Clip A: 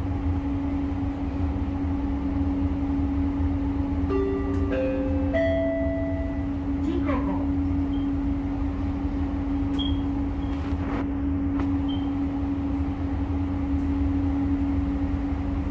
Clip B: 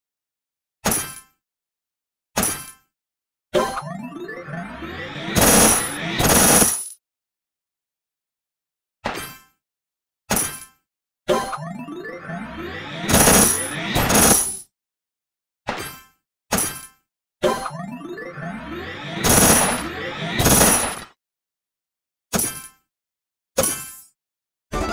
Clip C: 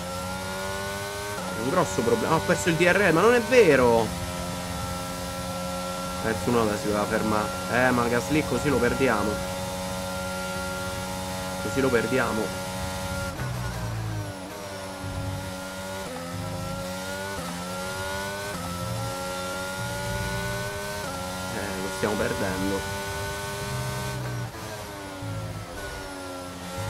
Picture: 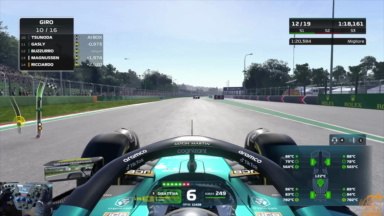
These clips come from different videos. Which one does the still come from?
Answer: C